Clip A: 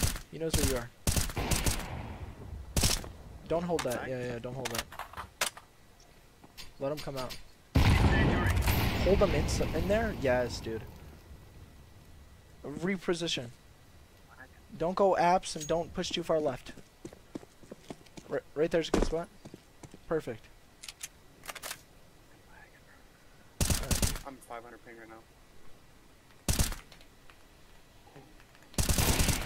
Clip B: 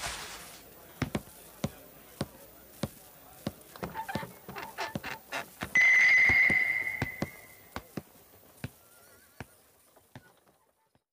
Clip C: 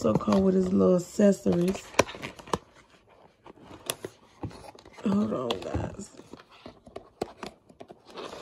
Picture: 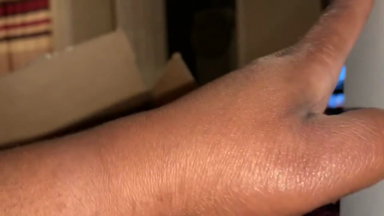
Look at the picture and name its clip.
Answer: C